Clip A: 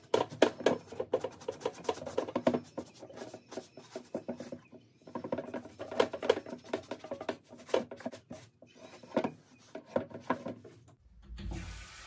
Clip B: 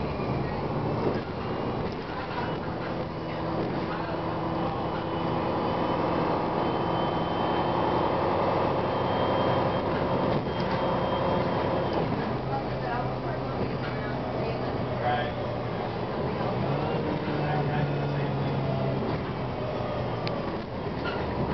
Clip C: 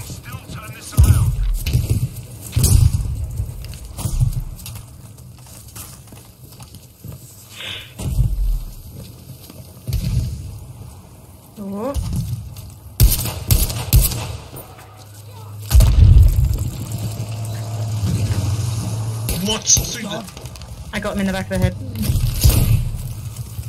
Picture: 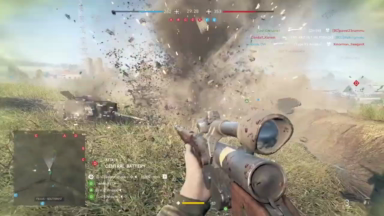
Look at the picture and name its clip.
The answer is C